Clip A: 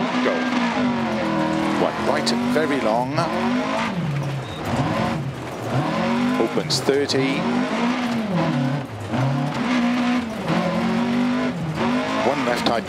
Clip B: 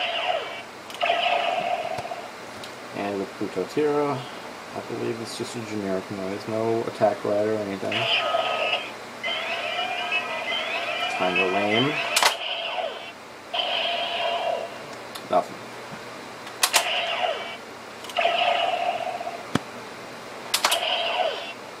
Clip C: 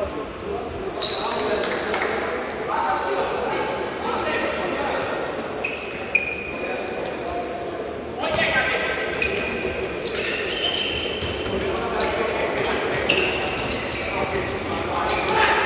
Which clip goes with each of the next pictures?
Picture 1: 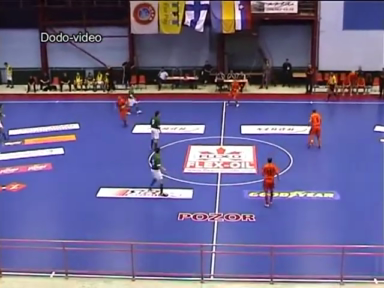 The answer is C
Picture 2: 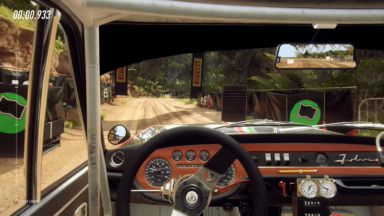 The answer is A